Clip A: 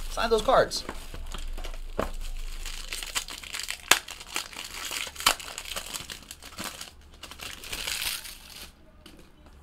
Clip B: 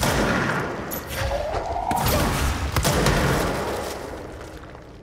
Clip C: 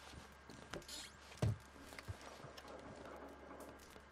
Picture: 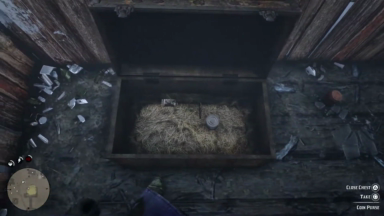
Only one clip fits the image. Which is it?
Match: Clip C